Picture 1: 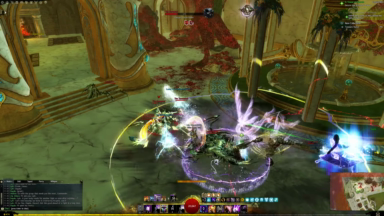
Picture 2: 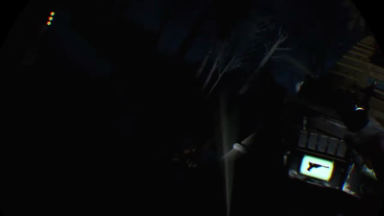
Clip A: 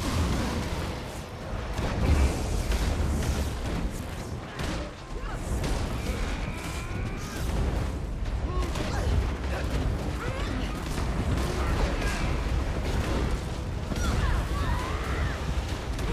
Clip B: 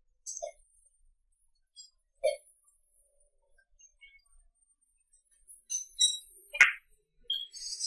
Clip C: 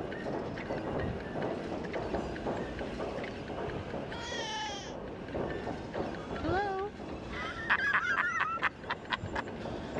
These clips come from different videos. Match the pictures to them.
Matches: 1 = A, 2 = C